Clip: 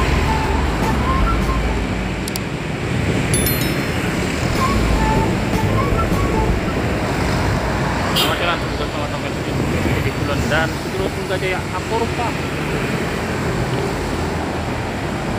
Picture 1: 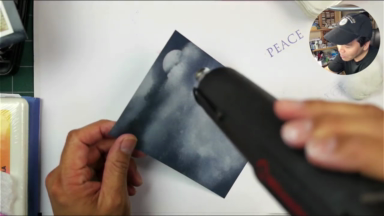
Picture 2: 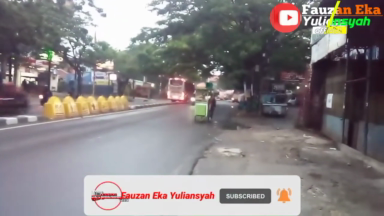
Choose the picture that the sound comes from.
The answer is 2